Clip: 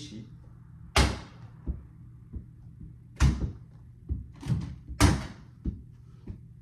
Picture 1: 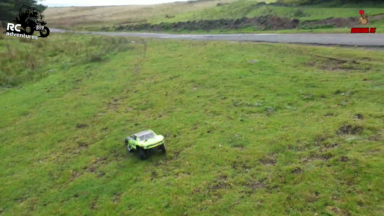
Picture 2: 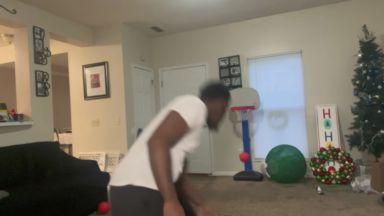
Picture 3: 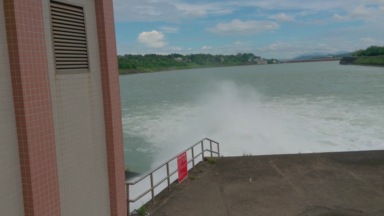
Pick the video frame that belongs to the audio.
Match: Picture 2